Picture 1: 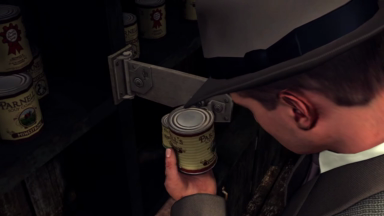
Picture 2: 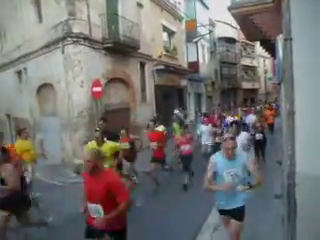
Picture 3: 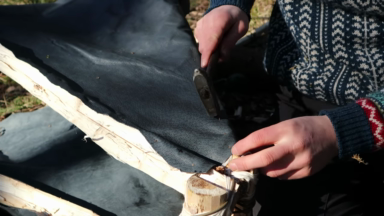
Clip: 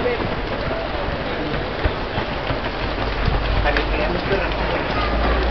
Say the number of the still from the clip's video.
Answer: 2